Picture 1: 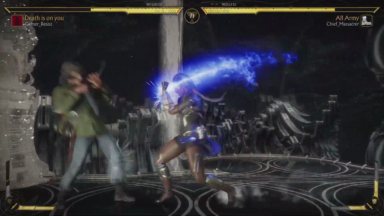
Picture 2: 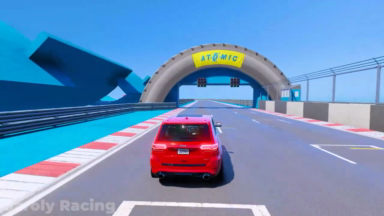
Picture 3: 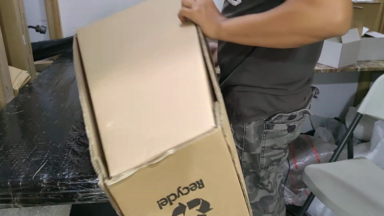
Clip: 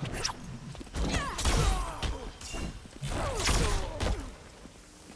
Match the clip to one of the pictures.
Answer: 1